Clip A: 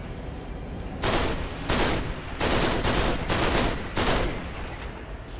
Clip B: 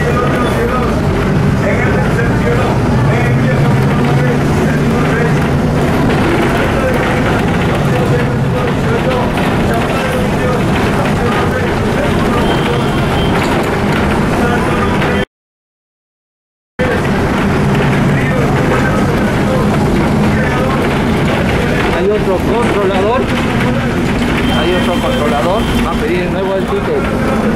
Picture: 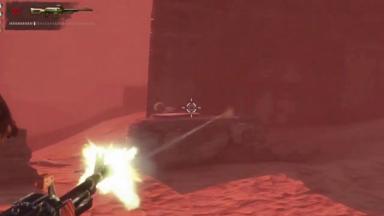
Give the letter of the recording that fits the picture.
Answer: A